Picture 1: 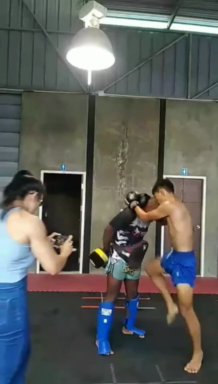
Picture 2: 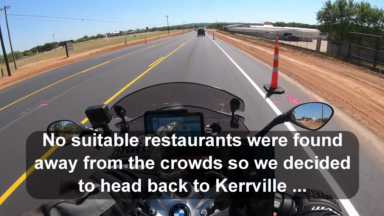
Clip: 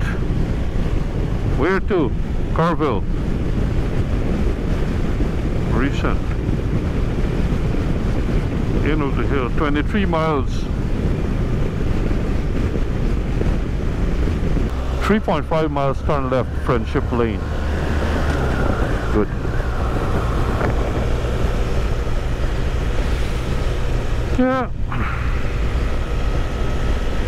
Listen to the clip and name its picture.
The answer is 2